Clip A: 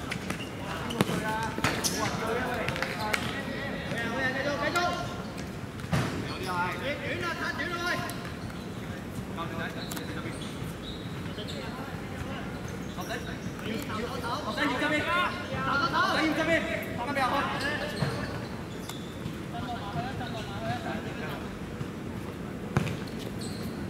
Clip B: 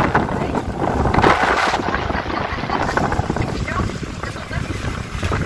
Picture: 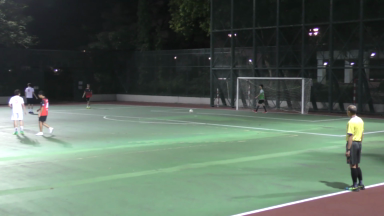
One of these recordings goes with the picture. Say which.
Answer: A